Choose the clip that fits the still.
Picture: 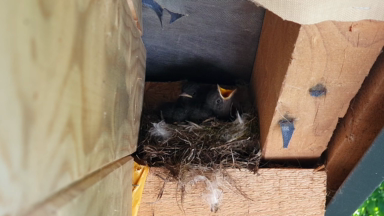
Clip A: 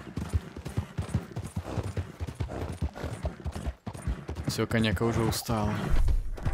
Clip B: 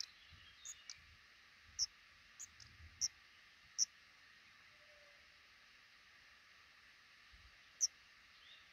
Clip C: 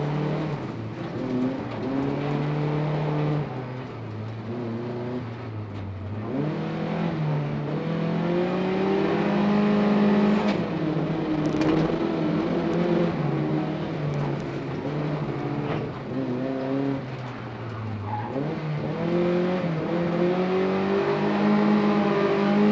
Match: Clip B